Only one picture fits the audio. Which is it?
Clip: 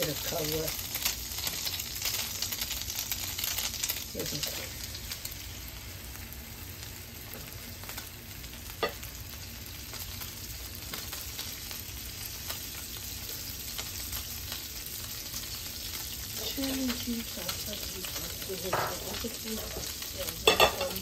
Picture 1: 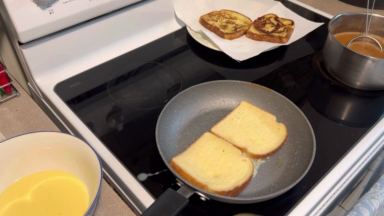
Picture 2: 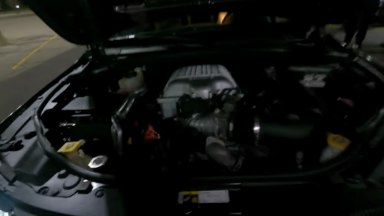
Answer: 1